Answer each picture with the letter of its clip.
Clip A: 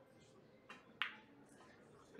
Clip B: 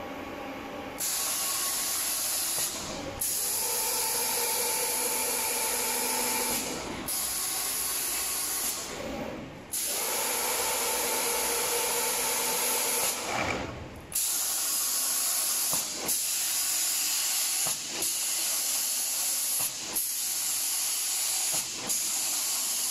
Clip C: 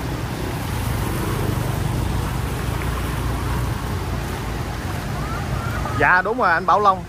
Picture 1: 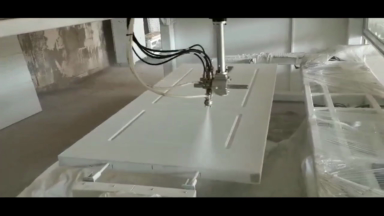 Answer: B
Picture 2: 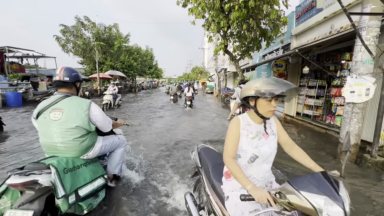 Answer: C